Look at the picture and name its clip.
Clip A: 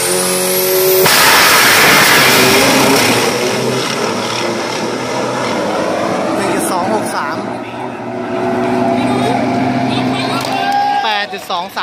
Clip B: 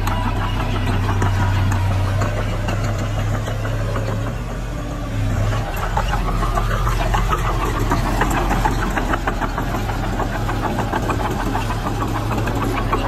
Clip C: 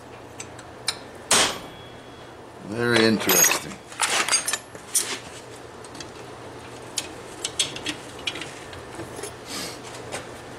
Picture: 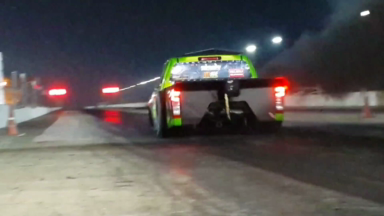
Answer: A